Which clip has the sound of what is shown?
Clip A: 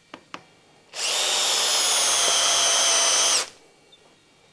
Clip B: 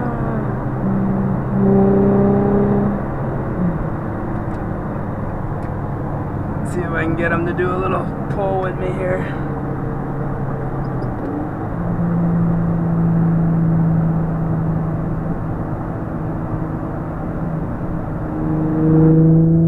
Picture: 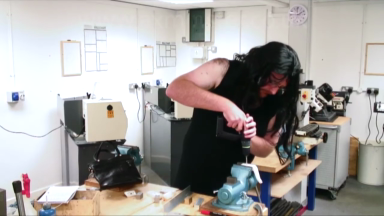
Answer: A